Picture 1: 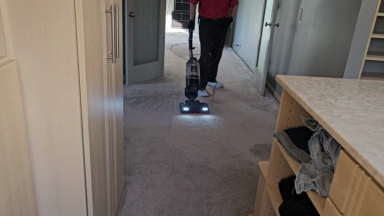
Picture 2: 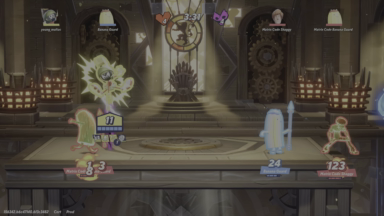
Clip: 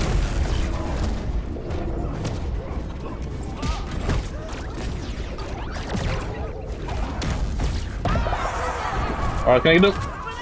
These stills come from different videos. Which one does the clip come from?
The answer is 2